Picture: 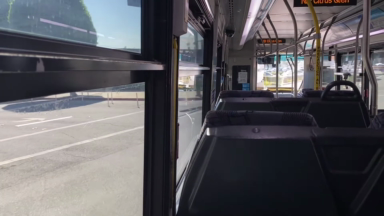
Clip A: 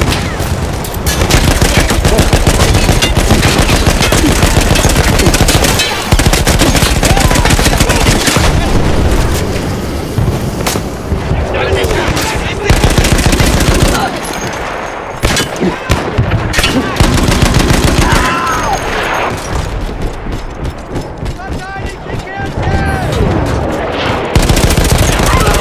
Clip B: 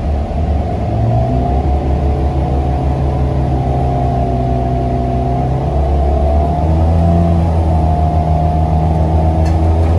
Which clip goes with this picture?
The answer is B